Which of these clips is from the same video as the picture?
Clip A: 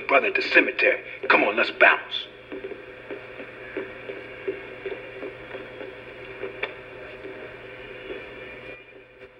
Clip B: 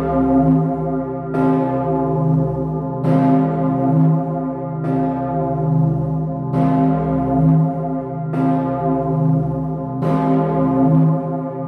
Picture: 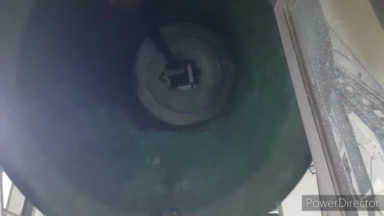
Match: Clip B